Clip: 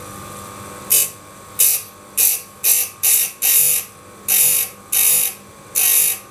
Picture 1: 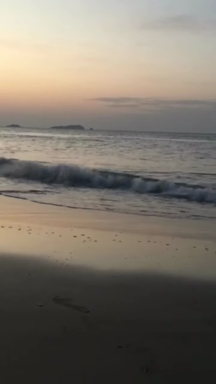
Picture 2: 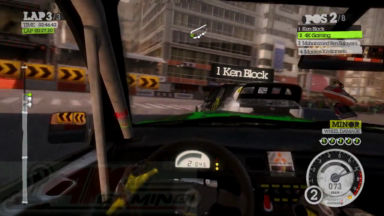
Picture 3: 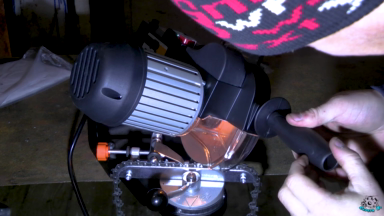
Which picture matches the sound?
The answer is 3